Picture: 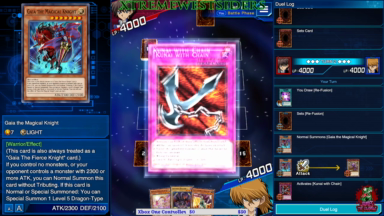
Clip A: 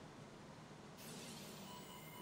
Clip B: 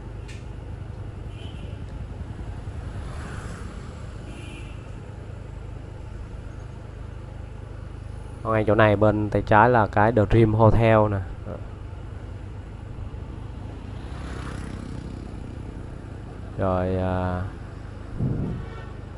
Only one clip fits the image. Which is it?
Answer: A